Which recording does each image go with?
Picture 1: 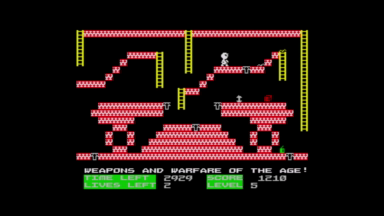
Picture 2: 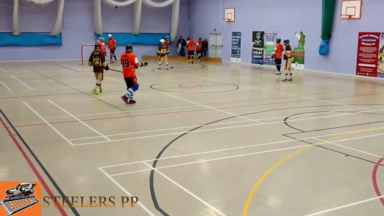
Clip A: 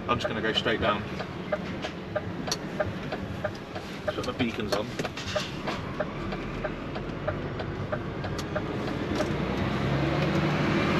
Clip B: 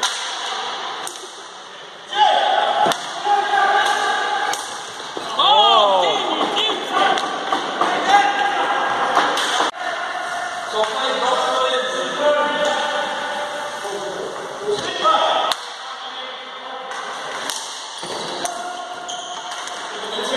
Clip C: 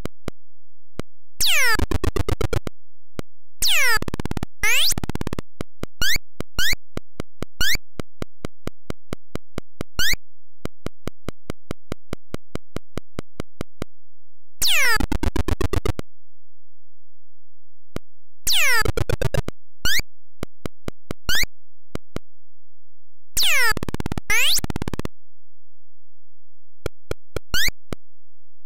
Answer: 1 C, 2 B